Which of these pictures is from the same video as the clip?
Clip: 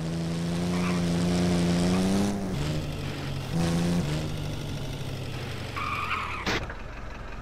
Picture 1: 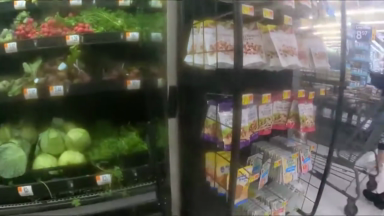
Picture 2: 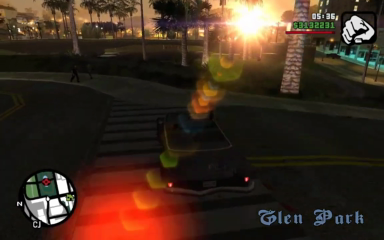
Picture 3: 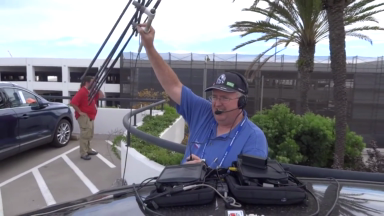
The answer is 2